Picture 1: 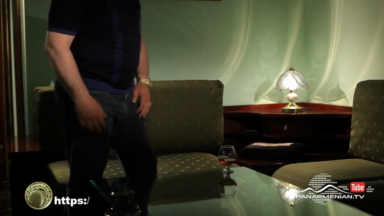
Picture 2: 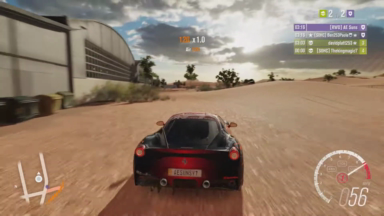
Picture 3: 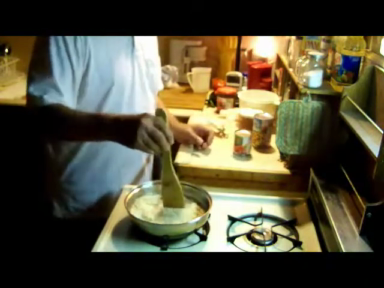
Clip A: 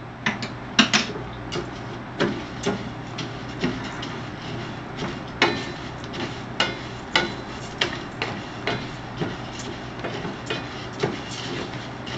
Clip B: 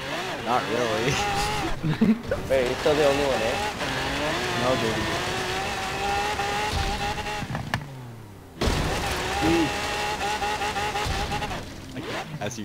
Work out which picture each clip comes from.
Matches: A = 3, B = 2